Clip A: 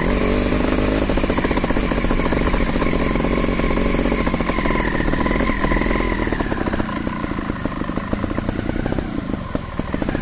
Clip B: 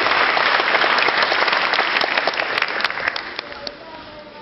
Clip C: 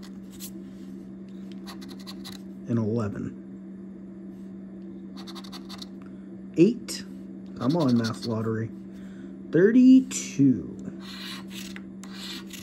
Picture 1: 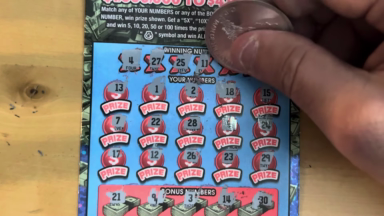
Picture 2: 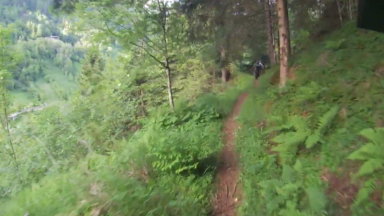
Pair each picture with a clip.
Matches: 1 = C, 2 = A